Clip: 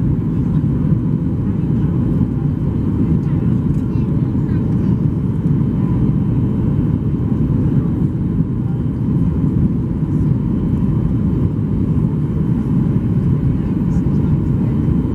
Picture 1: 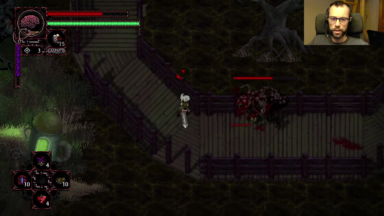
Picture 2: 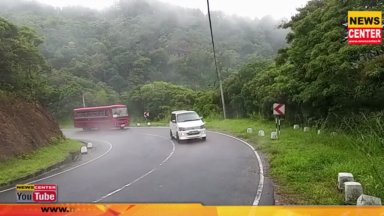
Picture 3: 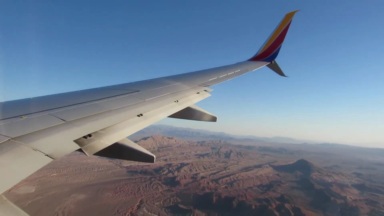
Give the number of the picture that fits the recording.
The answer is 3